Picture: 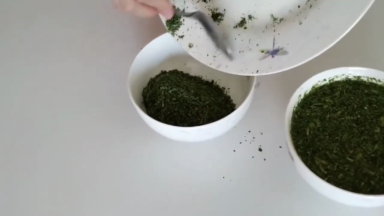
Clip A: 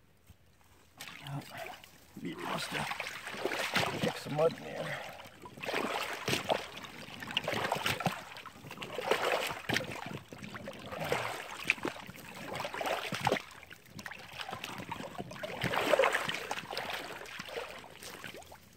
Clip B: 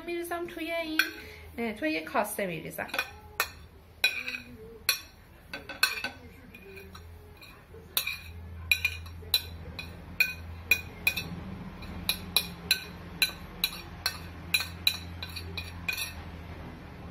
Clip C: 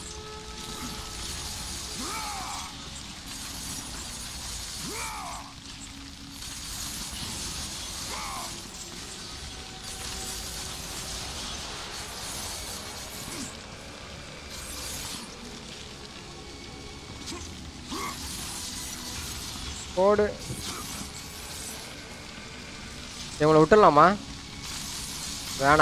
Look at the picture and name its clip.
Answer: B